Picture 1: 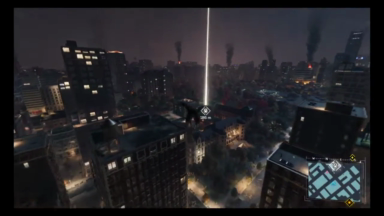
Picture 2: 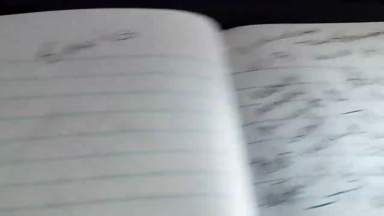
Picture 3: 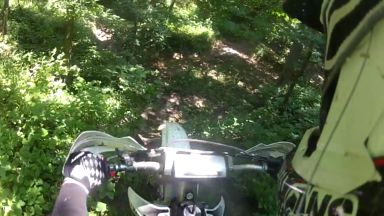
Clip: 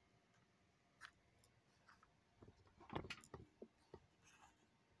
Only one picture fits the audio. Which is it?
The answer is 2